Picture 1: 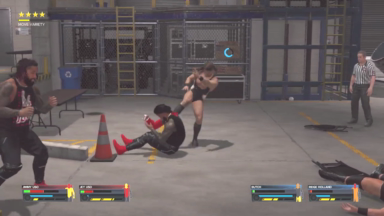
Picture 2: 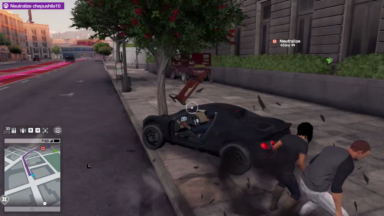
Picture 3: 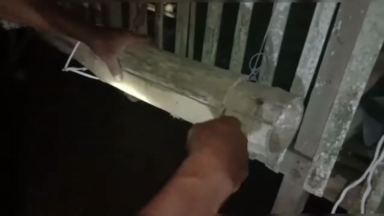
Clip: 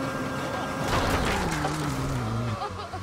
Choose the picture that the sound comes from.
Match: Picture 2